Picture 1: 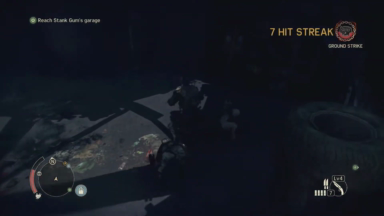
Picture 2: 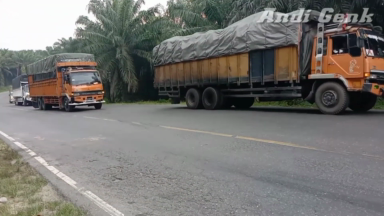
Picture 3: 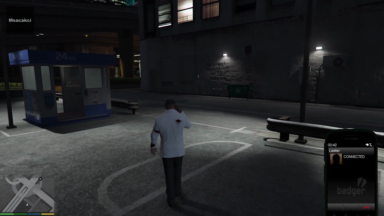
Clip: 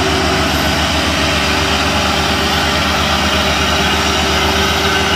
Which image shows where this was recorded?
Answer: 2